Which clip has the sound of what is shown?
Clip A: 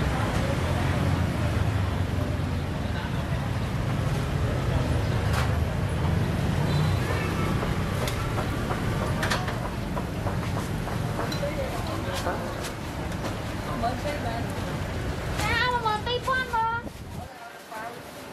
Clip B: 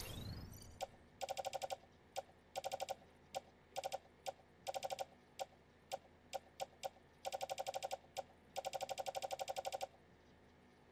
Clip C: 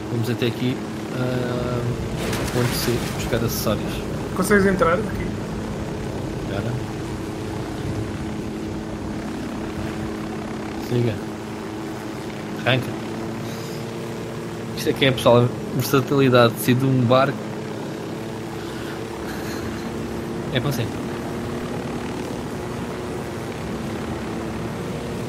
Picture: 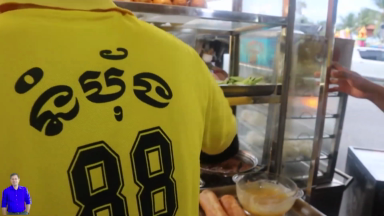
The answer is A